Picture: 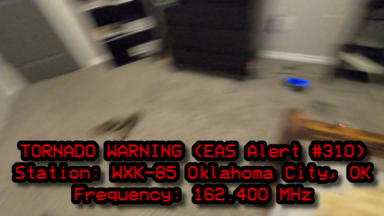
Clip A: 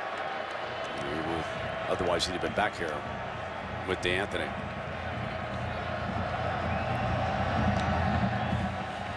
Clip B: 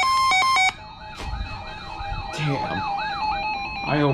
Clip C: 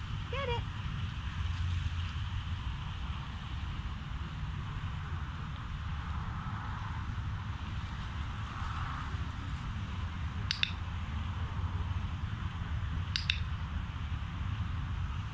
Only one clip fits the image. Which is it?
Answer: B